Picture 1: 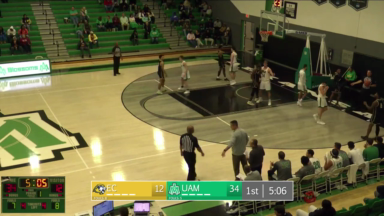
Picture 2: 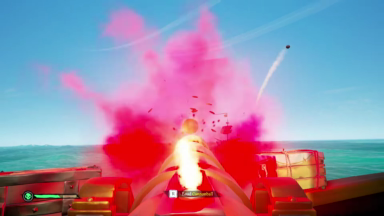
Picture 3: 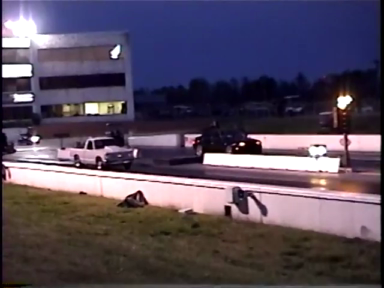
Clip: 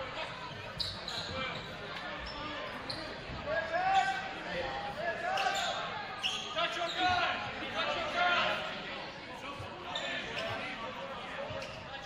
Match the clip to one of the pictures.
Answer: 1